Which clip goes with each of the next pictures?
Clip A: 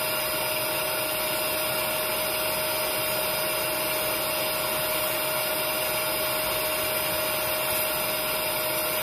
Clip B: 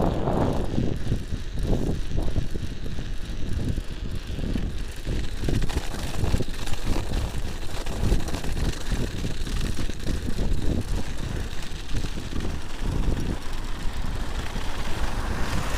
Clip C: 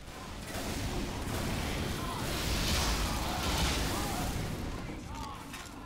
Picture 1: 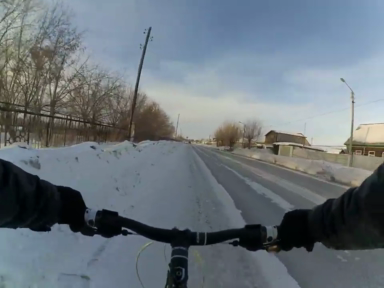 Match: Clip B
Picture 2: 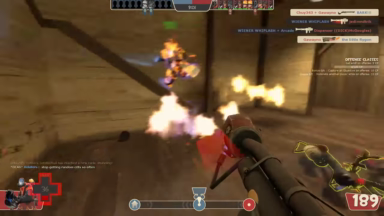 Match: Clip C